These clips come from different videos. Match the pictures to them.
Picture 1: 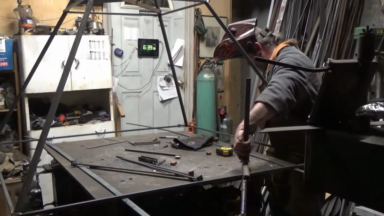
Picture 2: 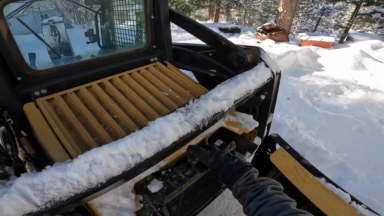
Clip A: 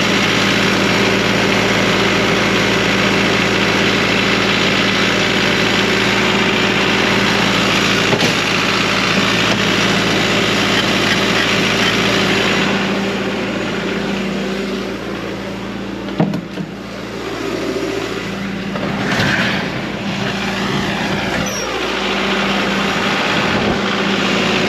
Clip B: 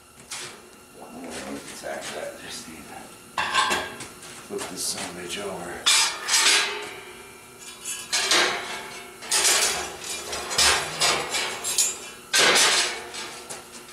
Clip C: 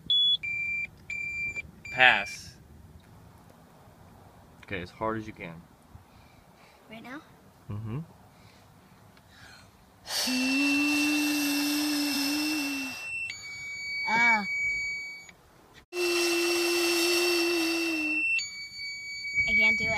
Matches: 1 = B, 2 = A